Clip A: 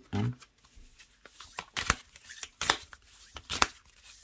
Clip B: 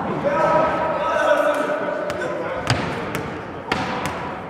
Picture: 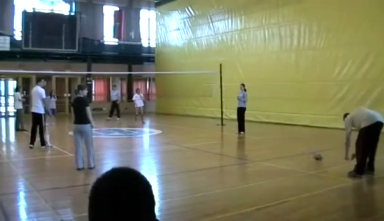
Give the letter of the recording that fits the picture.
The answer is B